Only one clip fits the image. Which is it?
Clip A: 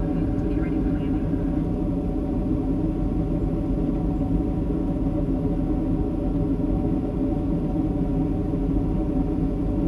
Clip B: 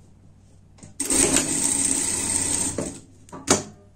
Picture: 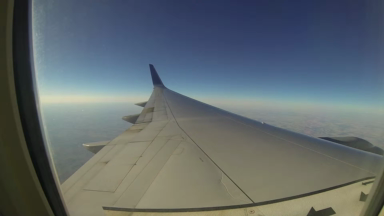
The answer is A